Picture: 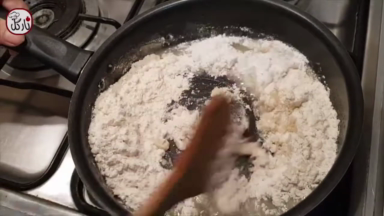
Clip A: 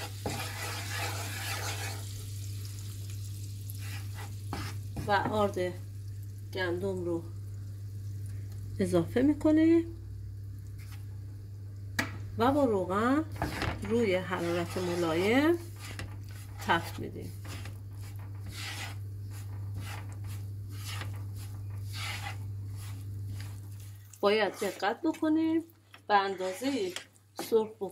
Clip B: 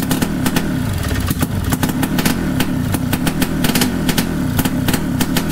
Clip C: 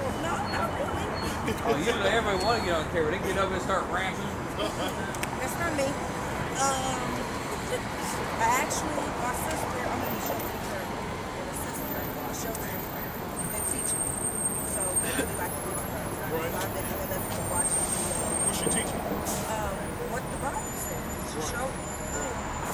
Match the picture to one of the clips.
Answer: A